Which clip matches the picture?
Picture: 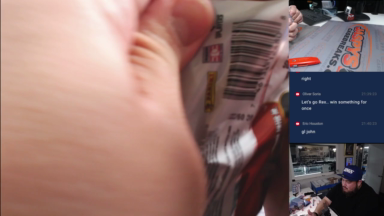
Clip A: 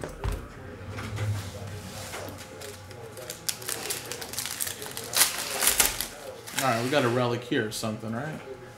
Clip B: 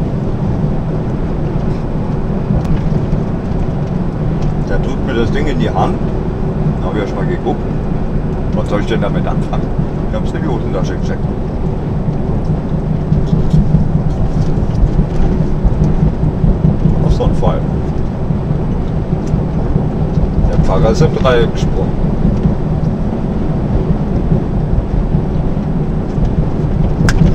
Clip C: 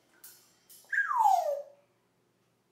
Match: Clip A